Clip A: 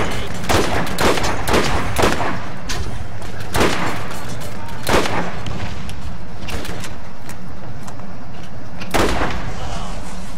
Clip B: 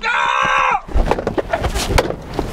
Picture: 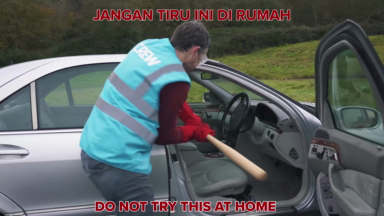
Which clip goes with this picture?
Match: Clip B